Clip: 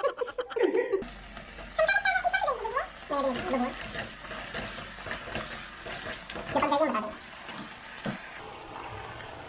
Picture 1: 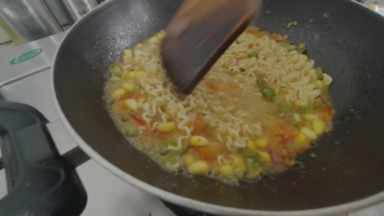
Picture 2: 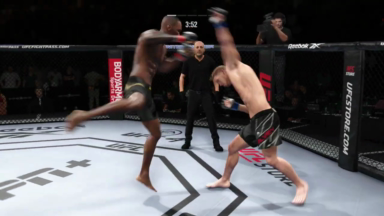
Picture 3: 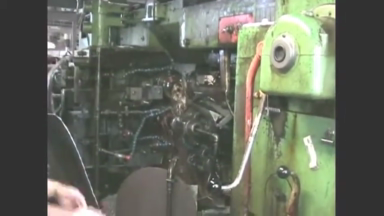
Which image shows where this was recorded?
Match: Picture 1